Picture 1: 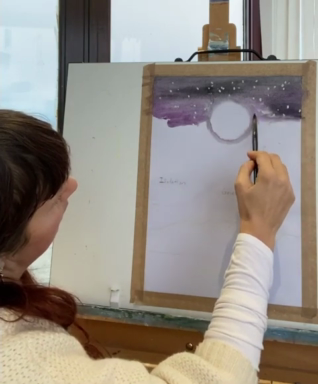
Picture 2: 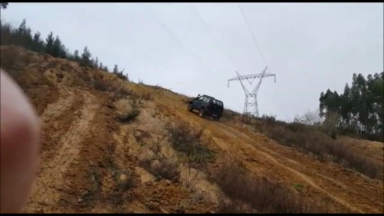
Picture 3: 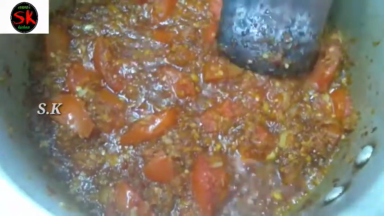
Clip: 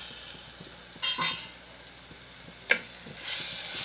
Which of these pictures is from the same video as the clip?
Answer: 3